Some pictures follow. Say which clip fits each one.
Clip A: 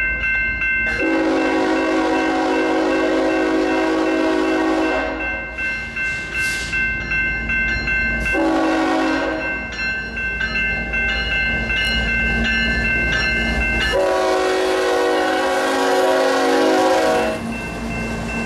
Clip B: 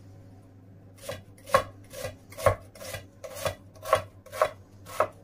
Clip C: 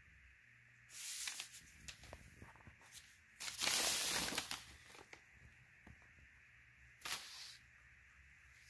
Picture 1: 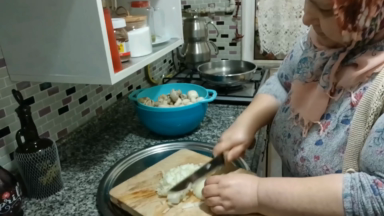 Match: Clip B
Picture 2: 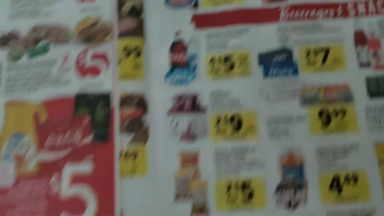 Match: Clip C